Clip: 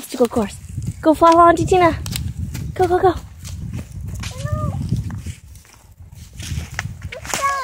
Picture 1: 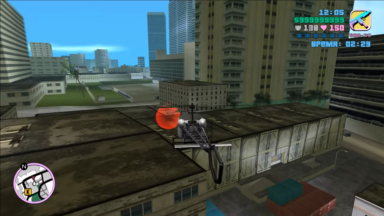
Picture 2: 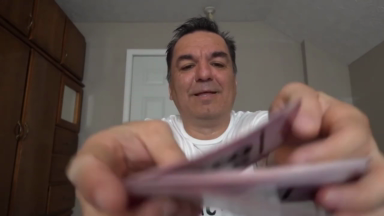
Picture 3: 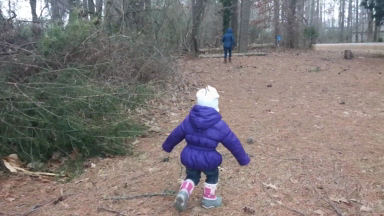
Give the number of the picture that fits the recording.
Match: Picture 3